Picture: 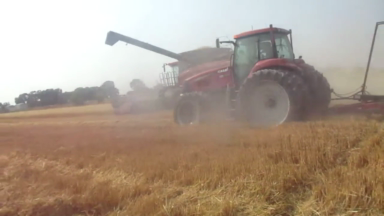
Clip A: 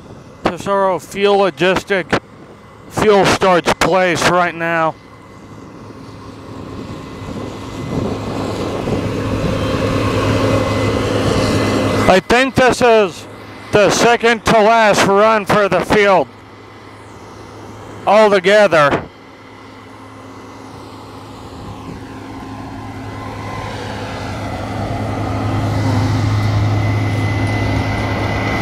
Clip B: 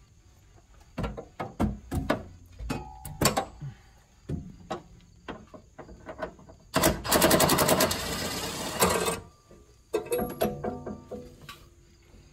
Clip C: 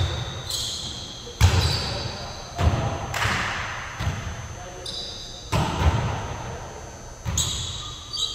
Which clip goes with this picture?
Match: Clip A